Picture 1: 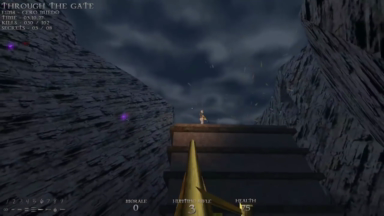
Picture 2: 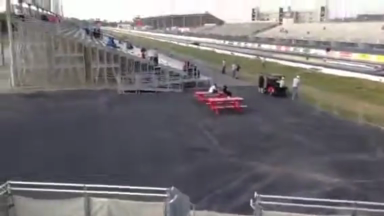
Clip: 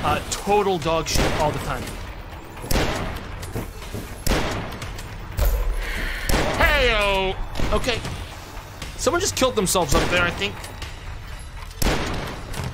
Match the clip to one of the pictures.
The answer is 1